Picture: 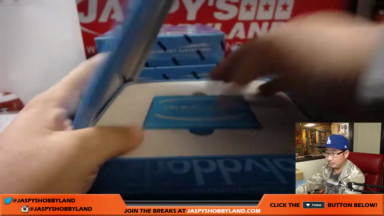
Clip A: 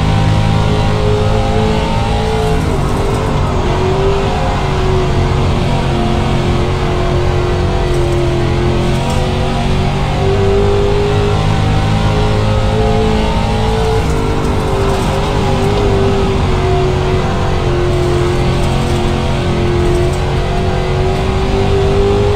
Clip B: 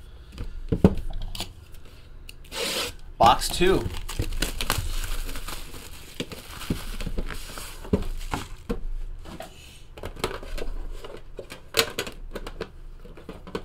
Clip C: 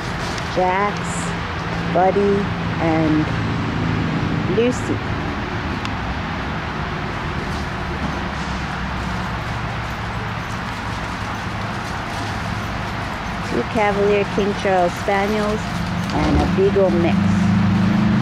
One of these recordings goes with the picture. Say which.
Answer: B